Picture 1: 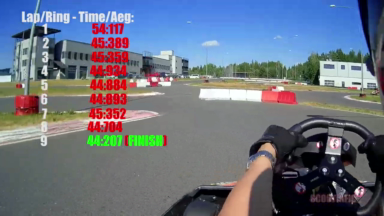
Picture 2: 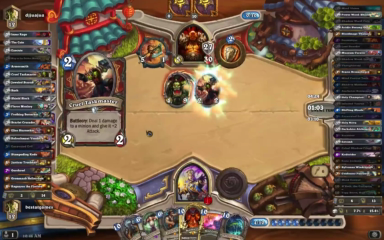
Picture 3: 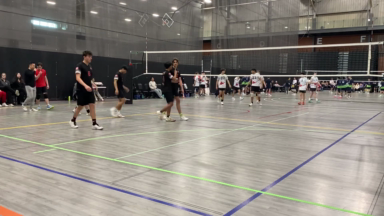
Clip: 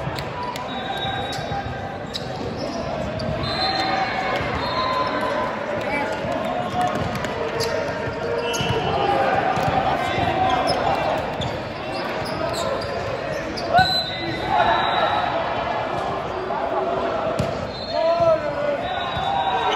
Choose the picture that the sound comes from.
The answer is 3